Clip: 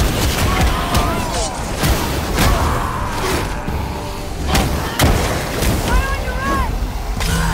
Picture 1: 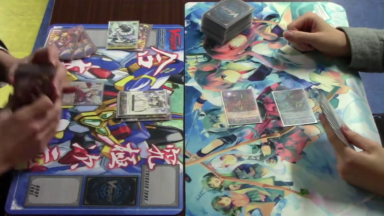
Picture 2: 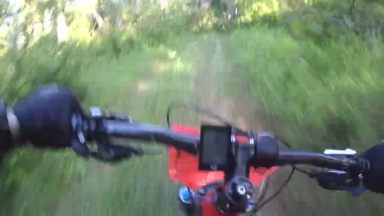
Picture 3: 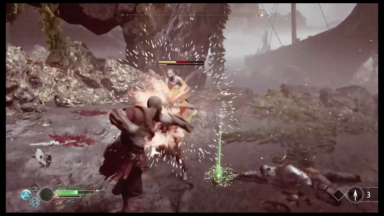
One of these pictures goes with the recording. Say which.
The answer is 3